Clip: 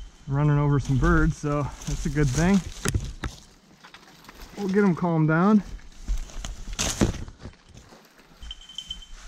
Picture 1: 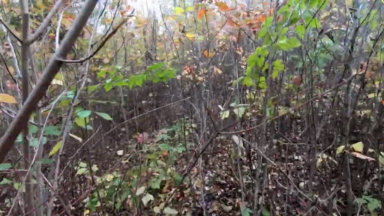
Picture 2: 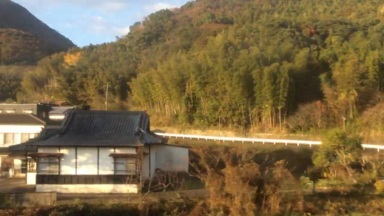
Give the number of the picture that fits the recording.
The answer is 1